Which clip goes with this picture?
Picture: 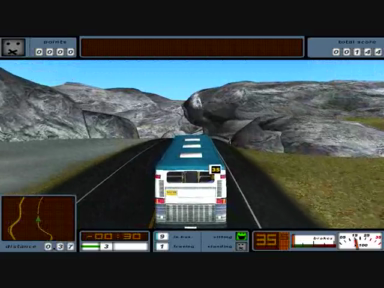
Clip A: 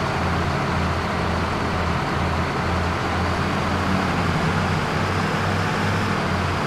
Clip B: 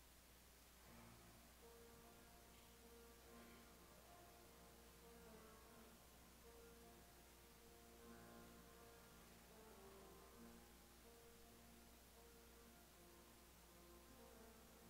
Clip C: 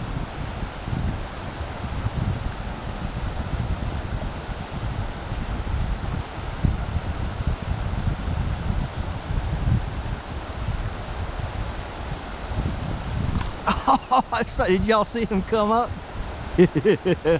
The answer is A